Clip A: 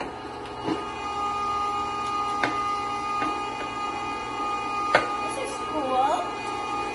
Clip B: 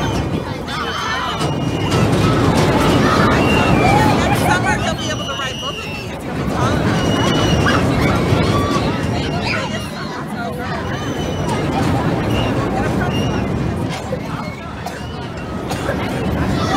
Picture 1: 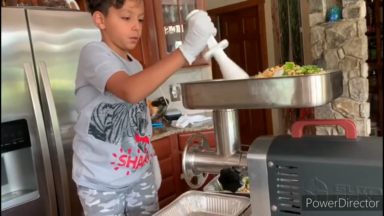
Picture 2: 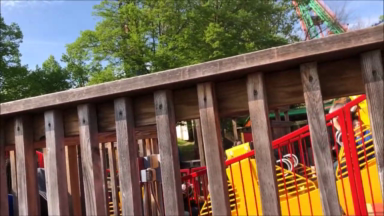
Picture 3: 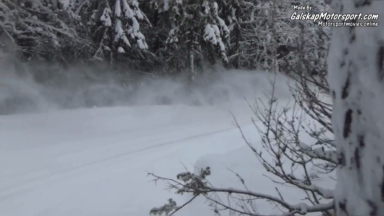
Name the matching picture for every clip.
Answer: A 1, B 2